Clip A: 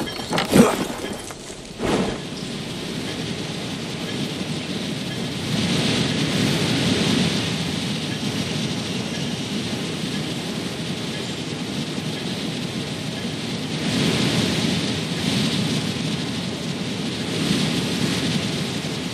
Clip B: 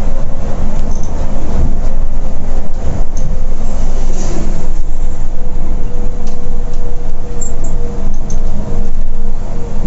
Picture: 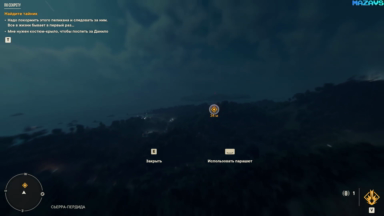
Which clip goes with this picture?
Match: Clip A